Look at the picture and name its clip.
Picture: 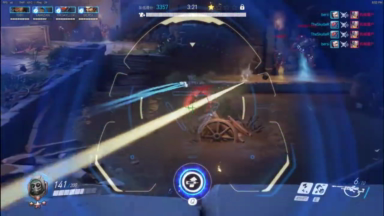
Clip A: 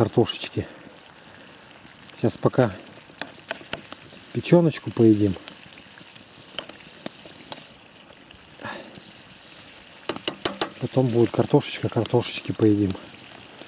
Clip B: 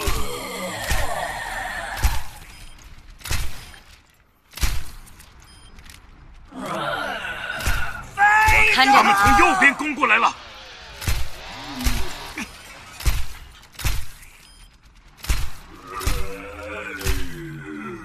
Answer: B